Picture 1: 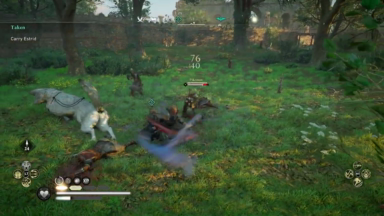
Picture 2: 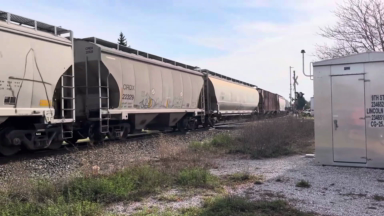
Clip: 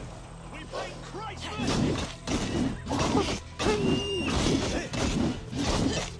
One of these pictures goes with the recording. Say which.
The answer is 1